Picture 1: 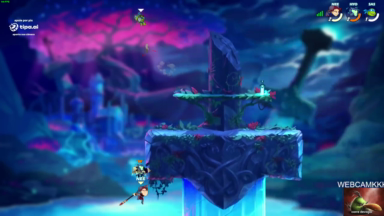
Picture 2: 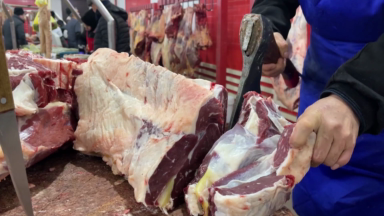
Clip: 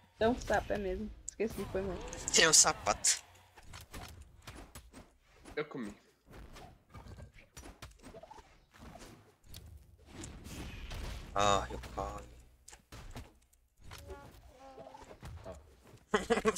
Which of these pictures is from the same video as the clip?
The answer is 1